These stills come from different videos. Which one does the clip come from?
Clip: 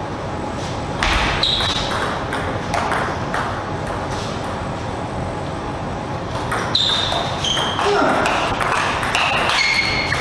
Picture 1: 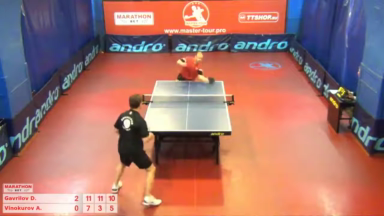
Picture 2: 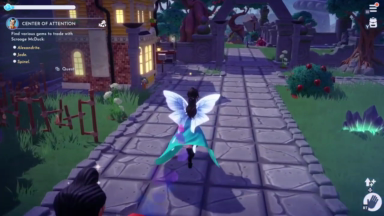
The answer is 1